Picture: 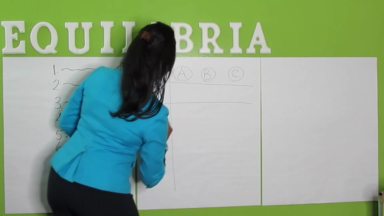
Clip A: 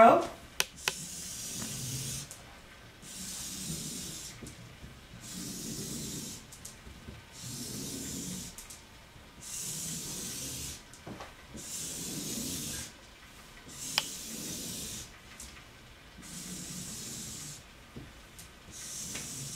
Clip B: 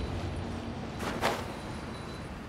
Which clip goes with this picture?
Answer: A